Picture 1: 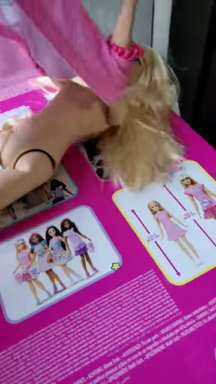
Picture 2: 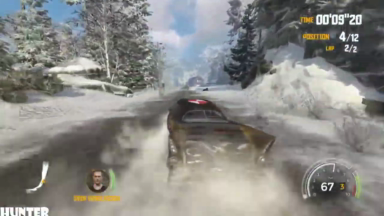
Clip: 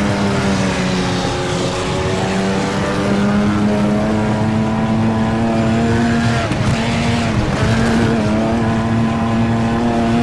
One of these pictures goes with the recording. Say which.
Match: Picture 2